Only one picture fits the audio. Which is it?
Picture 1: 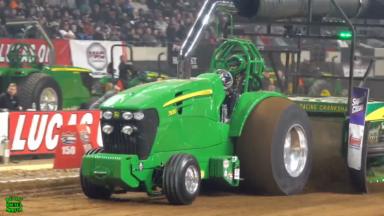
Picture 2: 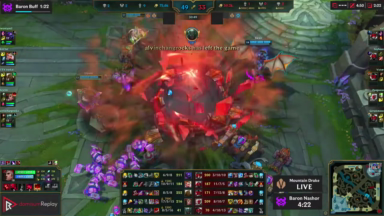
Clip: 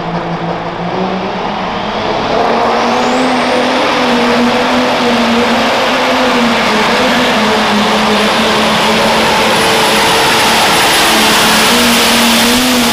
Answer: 1